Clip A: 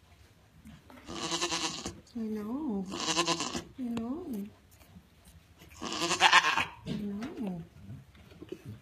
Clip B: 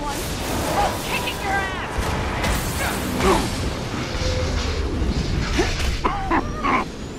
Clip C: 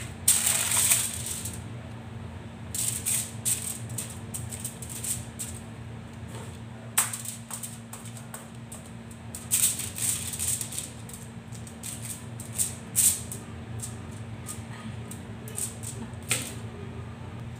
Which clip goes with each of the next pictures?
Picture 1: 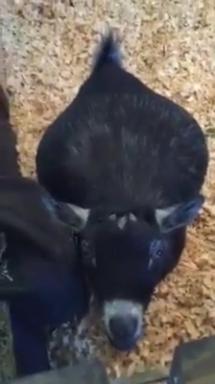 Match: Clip A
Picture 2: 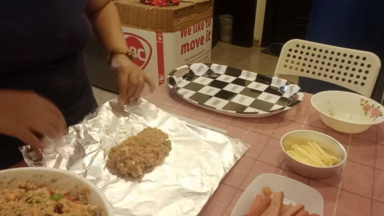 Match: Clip C